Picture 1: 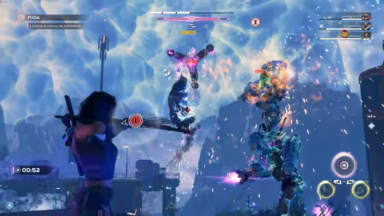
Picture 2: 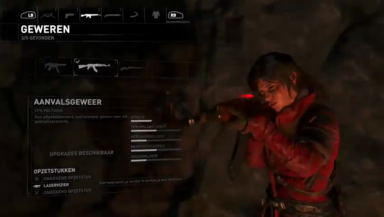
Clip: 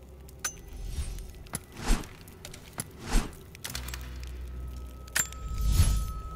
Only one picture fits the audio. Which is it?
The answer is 2